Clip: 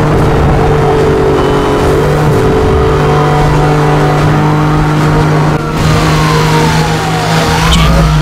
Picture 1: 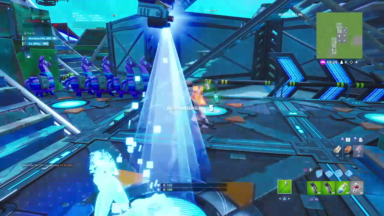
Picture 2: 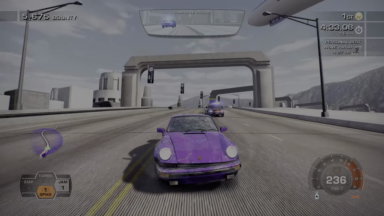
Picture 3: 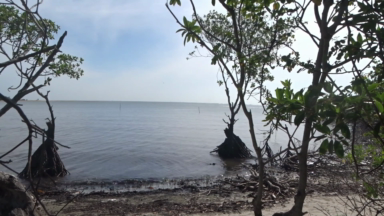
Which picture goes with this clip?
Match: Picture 2